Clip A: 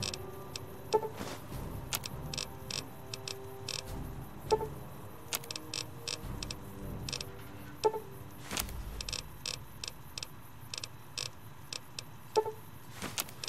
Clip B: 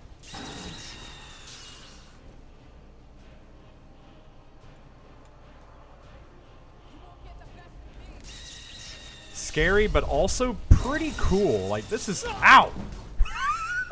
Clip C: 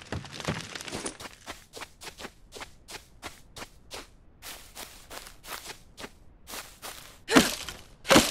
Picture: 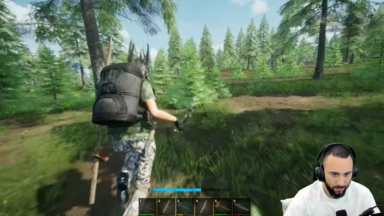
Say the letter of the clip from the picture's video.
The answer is C